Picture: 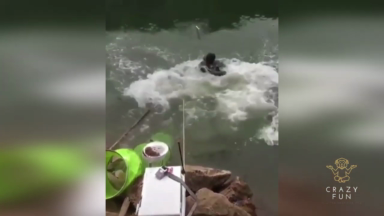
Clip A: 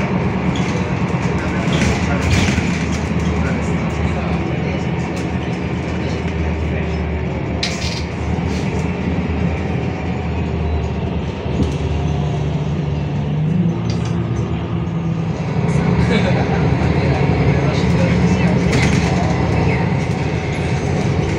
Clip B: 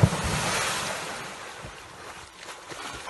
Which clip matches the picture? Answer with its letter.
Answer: B